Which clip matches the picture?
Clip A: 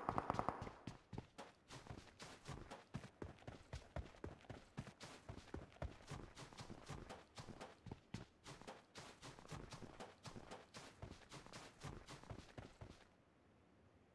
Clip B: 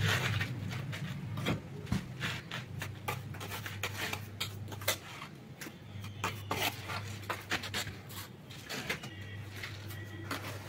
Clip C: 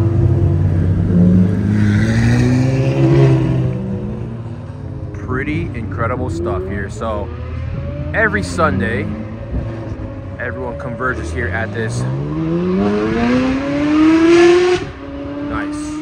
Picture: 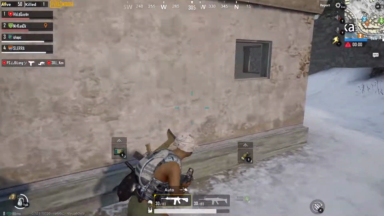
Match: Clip A